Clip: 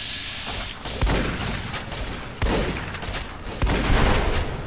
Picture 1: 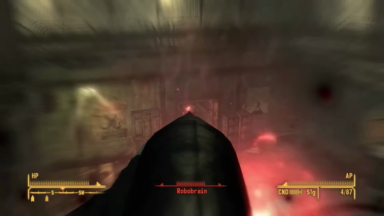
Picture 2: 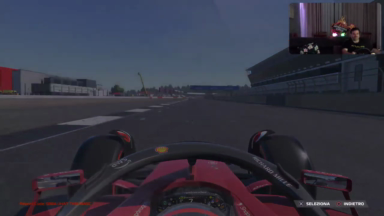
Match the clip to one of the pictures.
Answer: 1